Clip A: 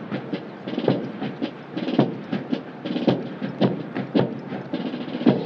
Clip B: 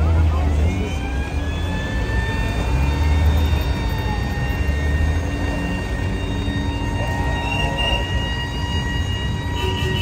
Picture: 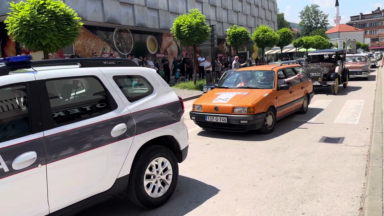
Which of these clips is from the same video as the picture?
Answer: B